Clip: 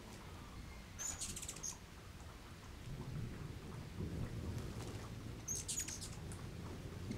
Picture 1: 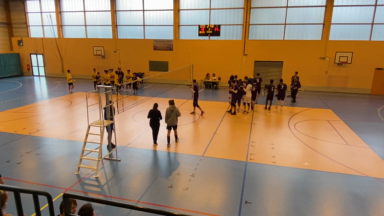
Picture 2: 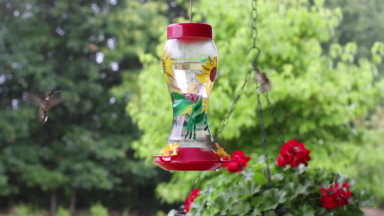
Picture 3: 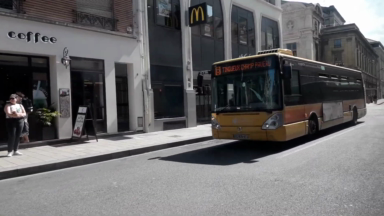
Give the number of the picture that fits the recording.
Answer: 2